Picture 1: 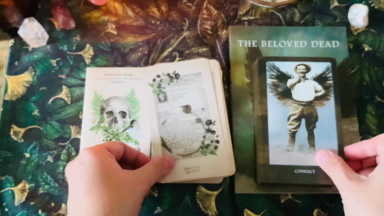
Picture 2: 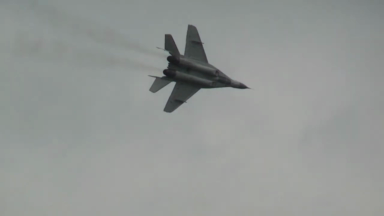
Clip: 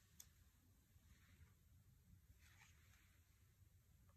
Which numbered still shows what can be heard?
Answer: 1